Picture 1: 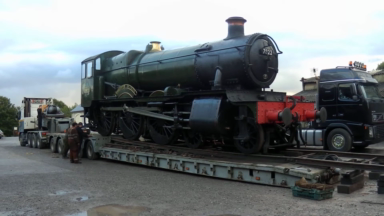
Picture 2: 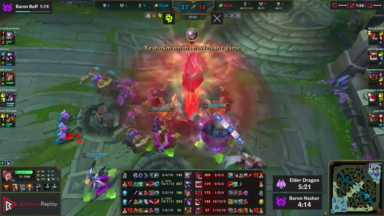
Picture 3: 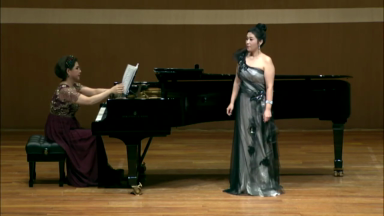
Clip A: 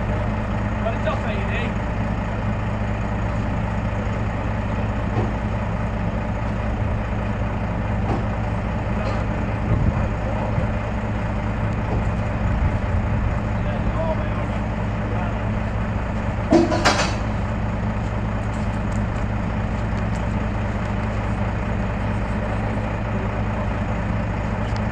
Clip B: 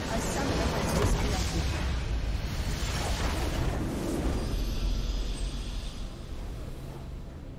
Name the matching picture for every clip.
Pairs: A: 1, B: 2